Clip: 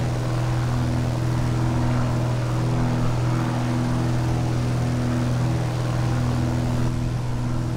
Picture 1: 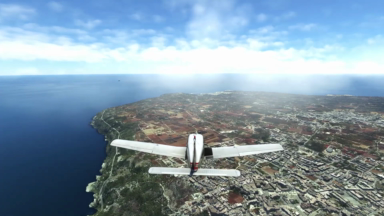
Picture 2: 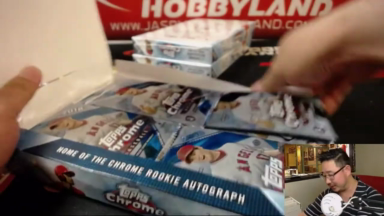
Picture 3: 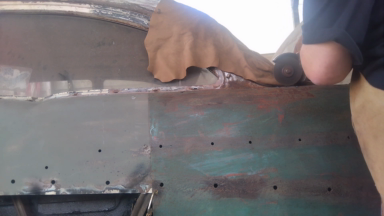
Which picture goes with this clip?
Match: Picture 1